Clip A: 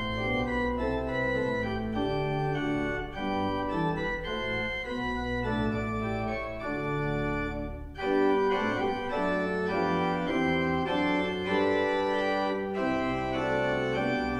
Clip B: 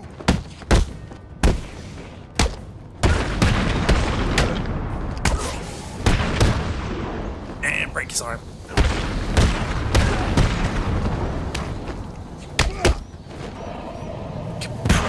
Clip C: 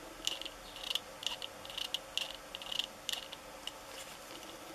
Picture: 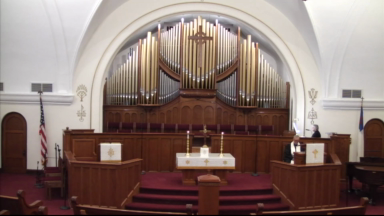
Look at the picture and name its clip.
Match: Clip A